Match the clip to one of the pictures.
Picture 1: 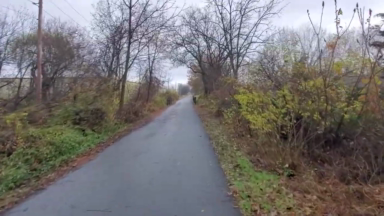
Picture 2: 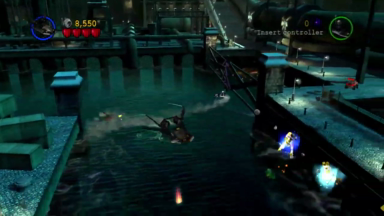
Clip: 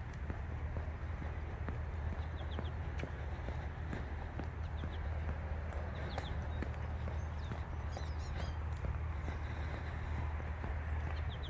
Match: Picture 1